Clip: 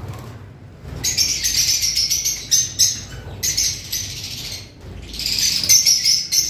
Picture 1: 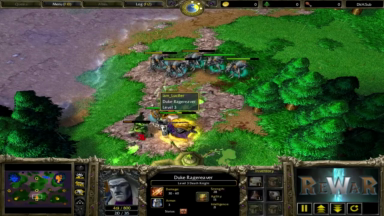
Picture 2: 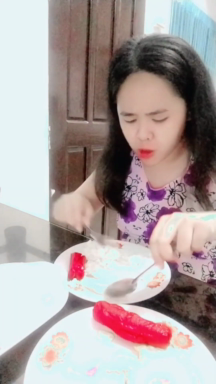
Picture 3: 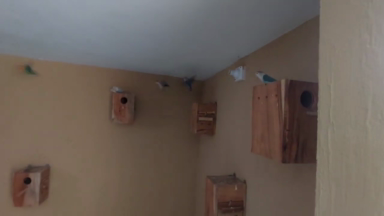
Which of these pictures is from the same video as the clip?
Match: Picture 3